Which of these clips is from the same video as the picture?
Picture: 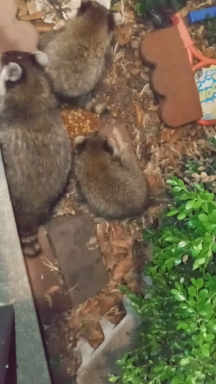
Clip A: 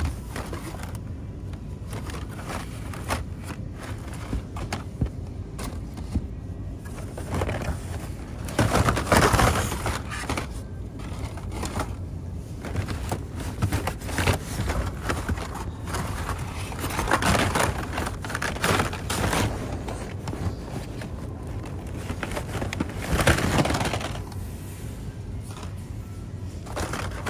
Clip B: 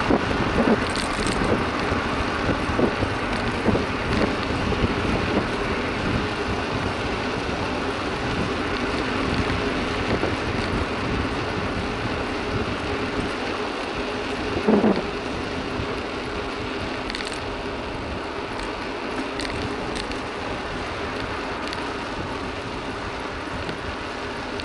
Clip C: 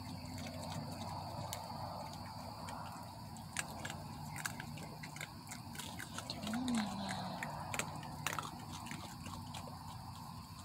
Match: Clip C